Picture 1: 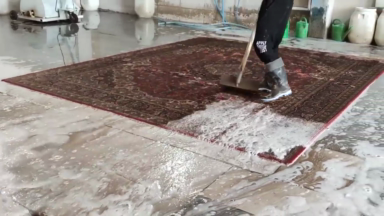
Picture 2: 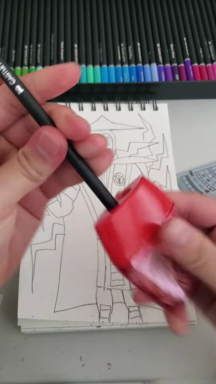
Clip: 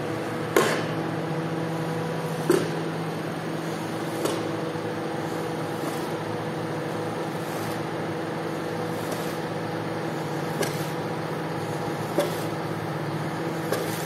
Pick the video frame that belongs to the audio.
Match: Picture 1